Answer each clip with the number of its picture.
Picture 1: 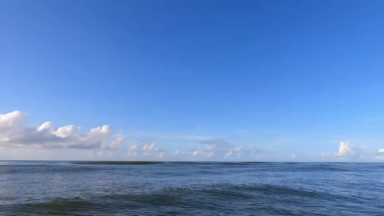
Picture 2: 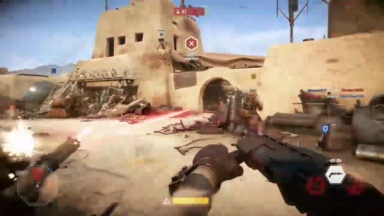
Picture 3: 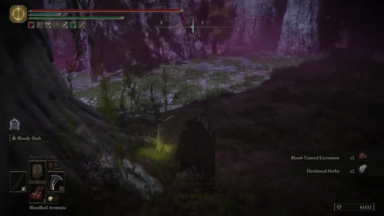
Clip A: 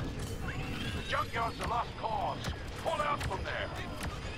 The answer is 2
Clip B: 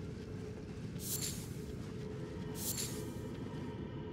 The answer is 3